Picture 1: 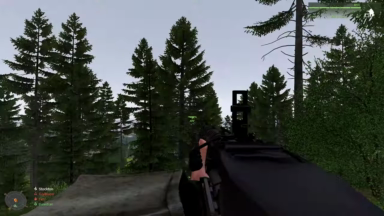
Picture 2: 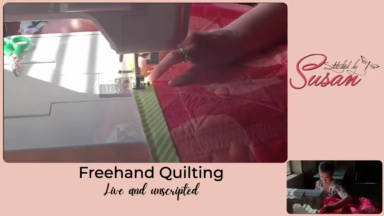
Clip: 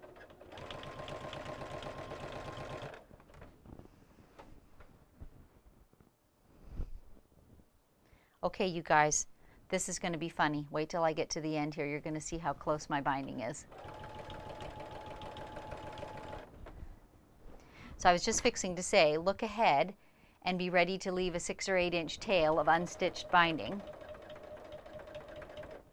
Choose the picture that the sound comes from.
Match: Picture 2